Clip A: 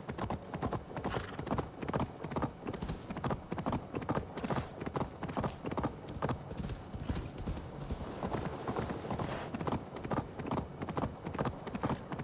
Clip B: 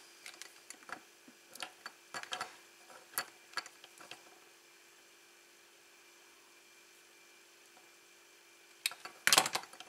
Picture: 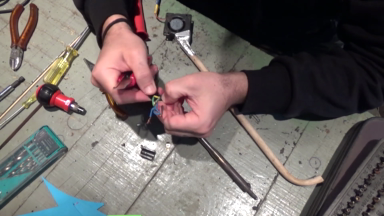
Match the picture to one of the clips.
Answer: B